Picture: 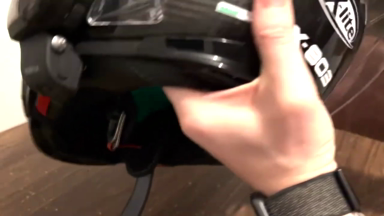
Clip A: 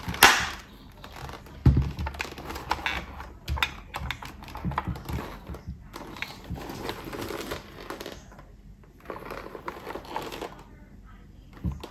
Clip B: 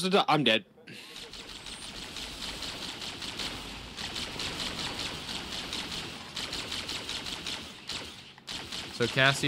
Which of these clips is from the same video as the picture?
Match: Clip A